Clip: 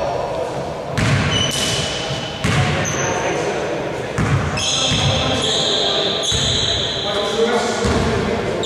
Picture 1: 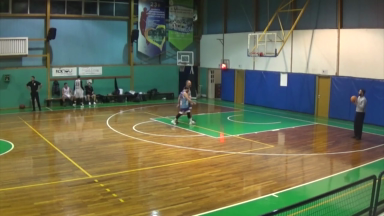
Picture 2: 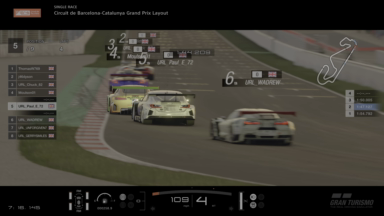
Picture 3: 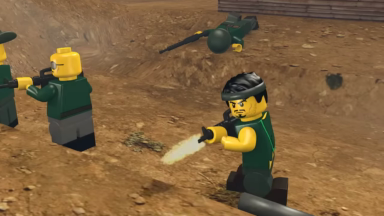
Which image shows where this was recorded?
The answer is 1